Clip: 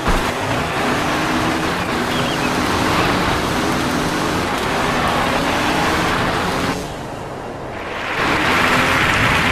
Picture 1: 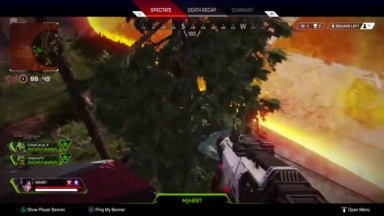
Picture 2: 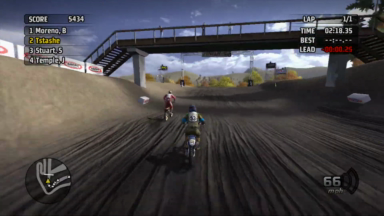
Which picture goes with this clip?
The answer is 2